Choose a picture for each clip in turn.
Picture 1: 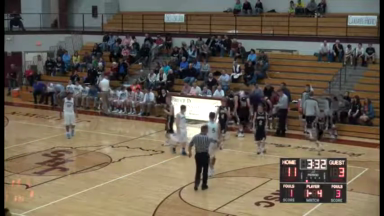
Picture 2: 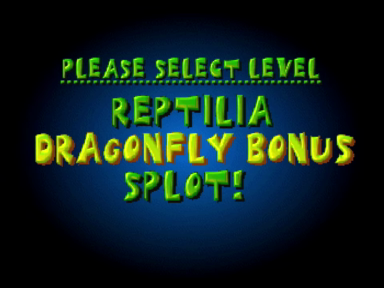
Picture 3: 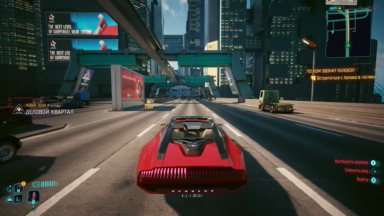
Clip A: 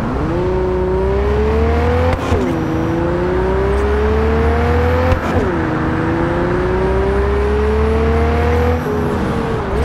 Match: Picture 3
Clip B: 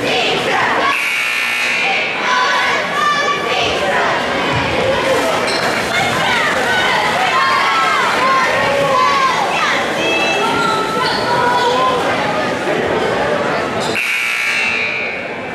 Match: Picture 1